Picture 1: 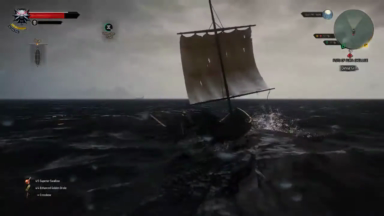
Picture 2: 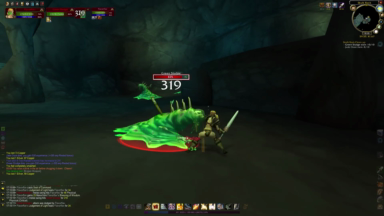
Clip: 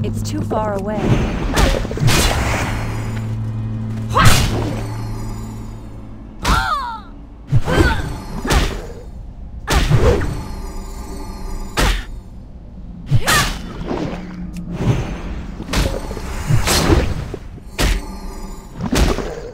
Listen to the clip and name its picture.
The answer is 2